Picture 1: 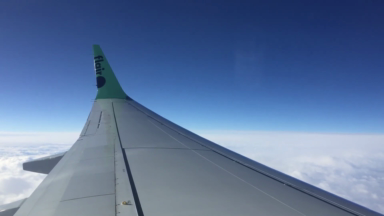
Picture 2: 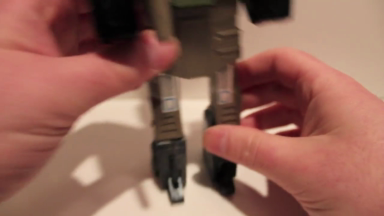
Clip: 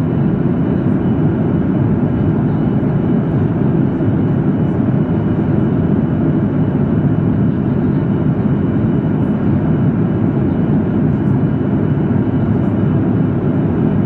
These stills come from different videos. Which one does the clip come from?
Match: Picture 1